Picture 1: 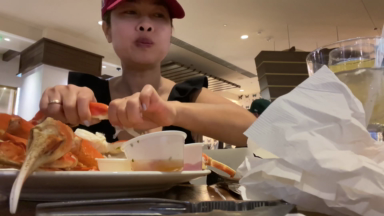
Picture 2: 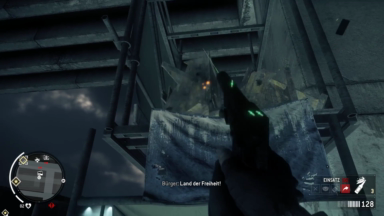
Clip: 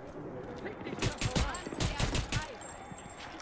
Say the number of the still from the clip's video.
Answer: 2